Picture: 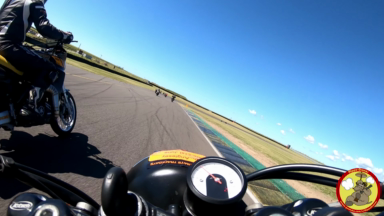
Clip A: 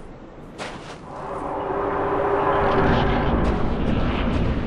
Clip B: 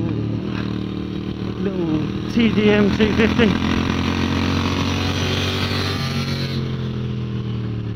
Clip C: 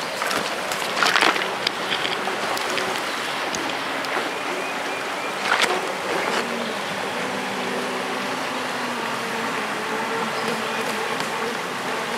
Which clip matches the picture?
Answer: B